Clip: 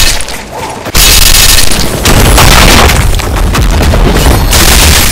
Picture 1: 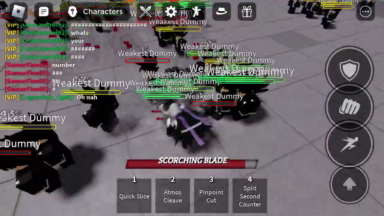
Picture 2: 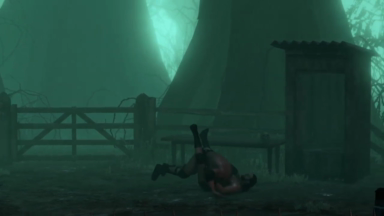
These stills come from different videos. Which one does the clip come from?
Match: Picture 1